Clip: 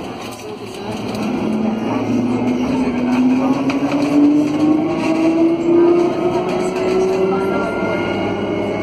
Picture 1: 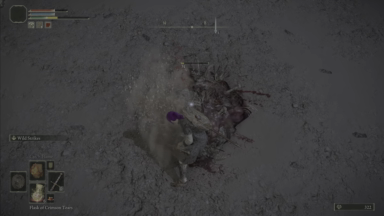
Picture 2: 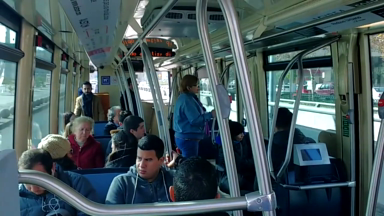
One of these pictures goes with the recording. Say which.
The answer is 2